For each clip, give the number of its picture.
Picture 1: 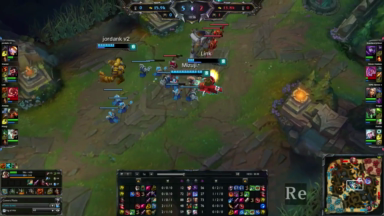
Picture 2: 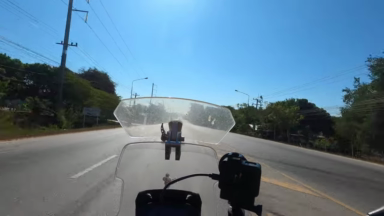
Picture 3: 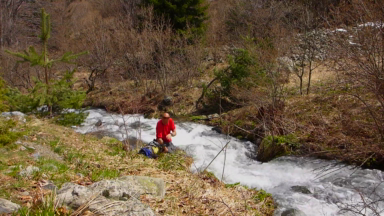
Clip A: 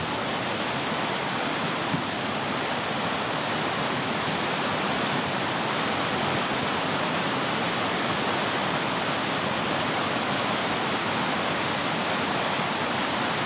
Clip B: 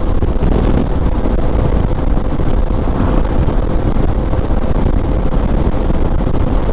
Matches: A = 3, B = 2